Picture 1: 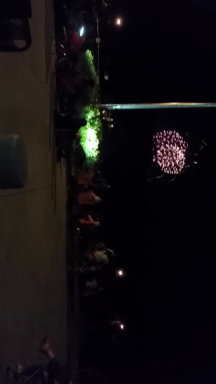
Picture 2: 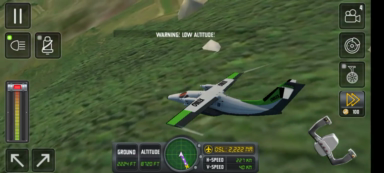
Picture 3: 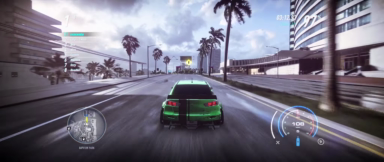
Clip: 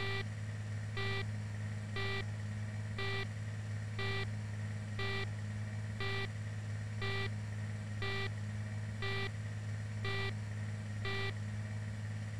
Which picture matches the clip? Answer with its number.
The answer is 2